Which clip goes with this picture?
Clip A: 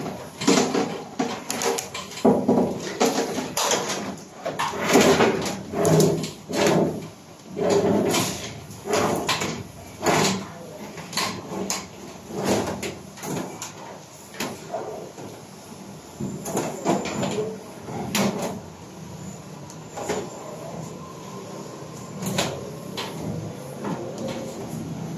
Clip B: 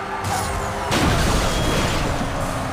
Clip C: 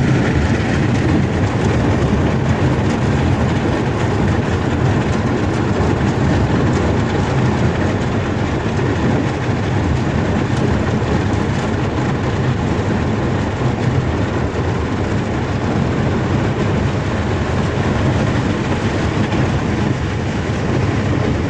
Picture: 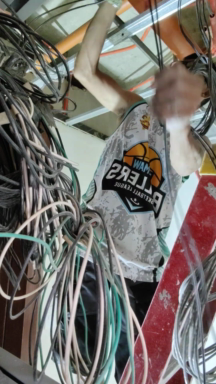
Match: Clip A